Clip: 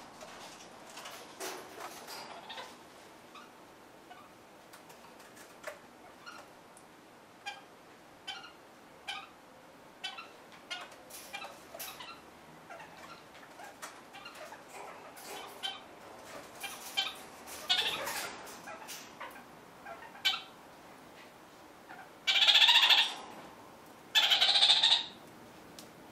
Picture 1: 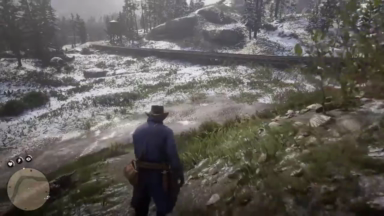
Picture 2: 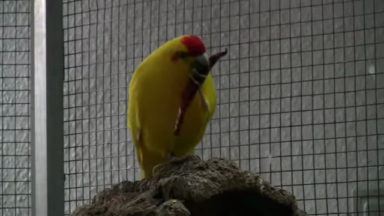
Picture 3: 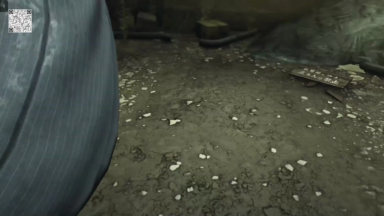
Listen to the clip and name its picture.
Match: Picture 2